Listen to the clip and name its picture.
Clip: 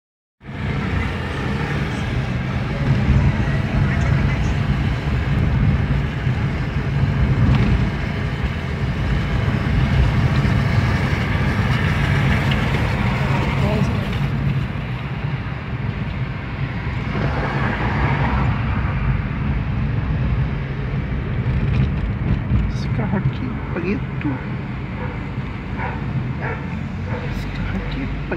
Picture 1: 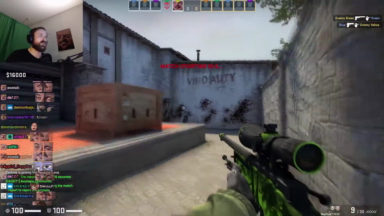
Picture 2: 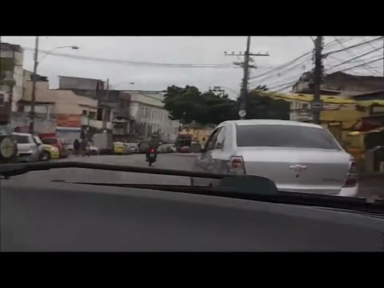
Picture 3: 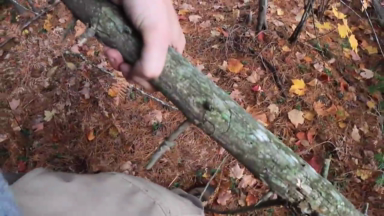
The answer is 2